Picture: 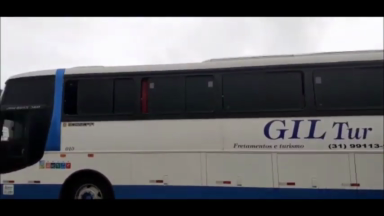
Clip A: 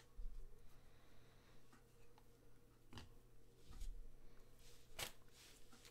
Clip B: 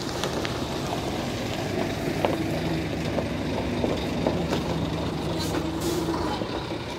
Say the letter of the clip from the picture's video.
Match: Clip B